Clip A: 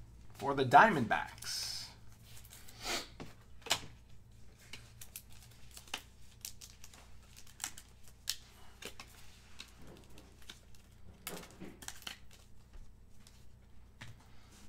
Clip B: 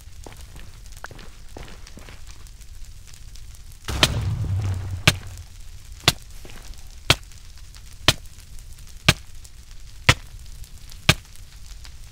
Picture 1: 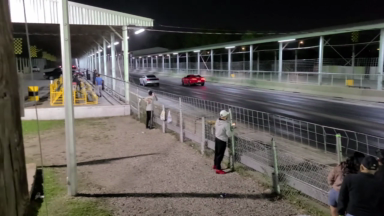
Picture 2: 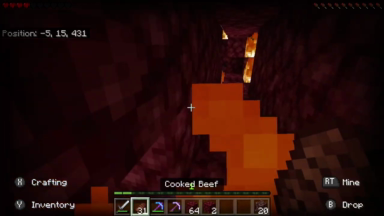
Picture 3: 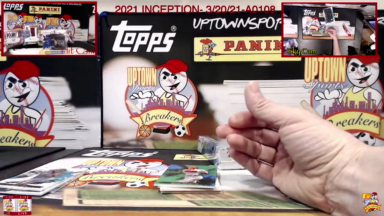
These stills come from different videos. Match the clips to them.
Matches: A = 3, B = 2